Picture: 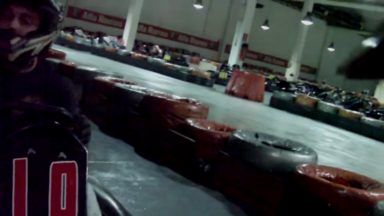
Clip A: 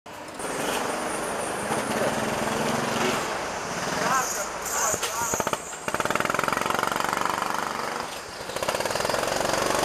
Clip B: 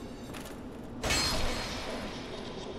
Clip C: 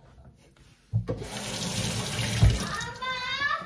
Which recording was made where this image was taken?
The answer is A